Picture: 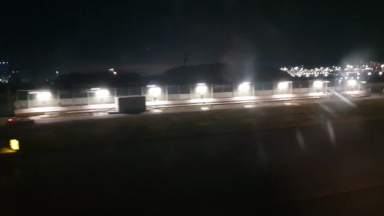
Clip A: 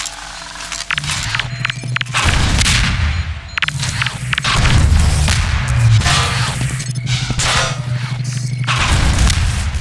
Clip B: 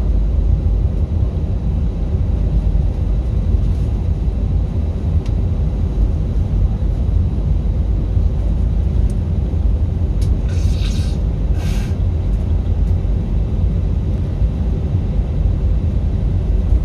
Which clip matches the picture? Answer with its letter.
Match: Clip B